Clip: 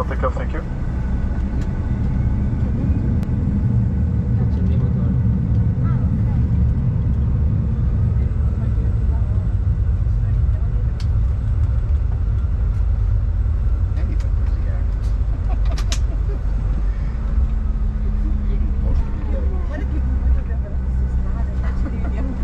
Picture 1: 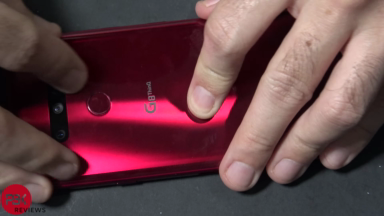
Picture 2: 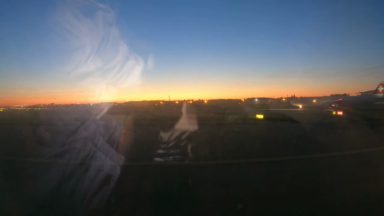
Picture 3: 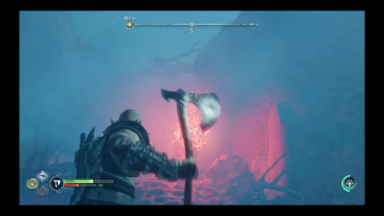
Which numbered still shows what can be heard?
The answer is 2